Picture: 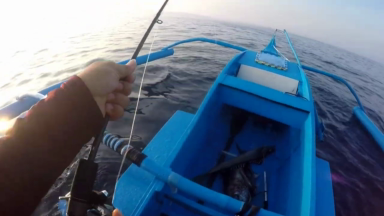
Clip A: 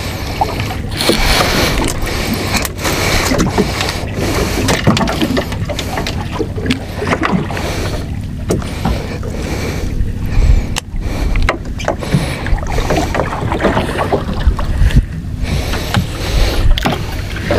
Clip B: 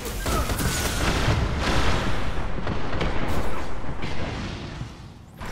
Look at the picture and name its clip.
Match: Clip A